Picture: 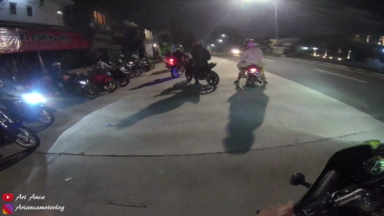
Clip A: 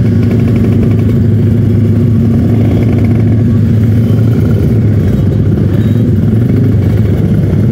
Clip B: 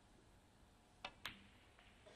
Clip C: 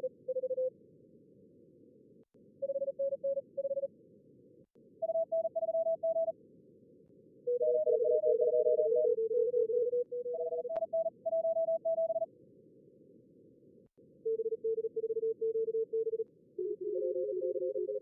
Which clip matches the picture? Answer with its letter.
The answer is A